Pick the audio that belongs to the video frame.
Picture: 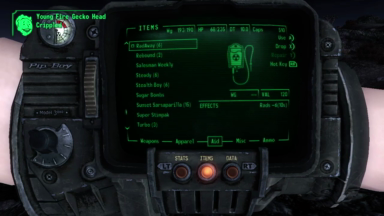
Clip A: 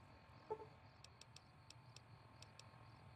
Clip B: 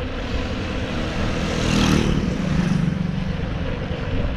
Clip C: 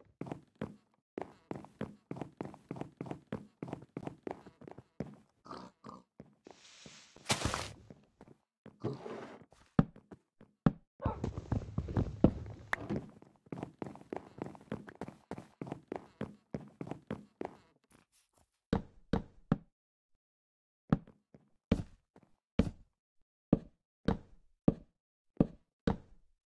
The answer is A